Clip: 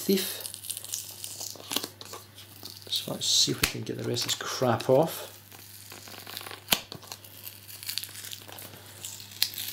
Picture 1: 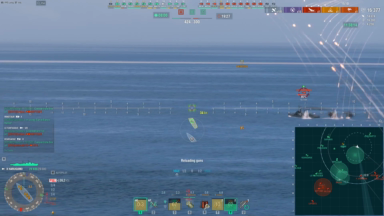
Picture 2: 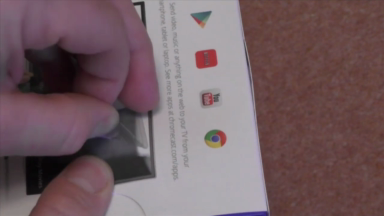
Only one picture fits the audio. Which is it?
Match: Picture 2